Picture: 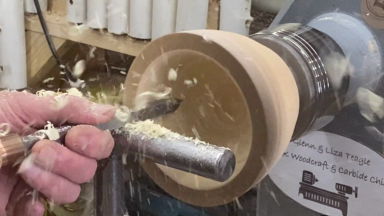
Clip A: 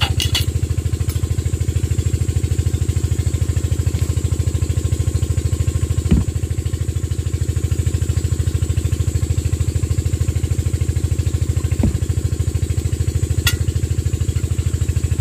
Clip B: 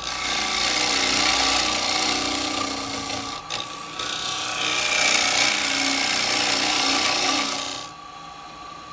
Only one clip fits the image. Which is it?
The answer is B